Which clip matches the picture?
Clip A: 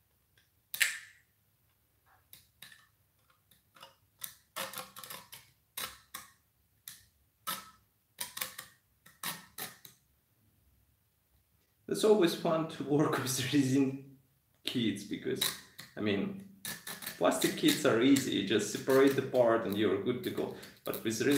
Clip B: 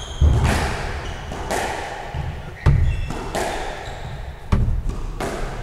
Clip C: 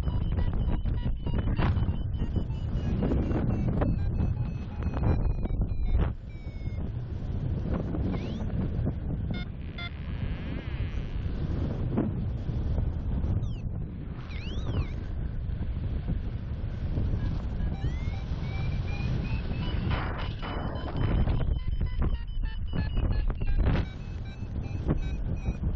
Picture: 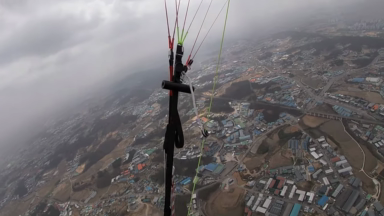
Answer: C